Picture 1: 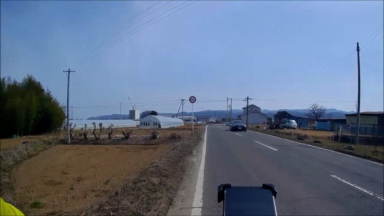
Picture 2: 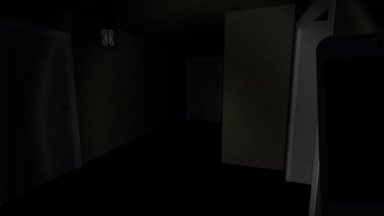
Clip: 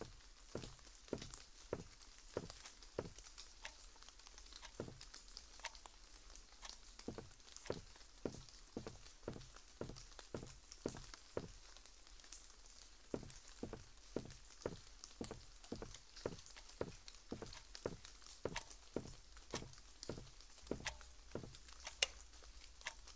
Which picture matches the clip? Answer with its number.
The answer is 2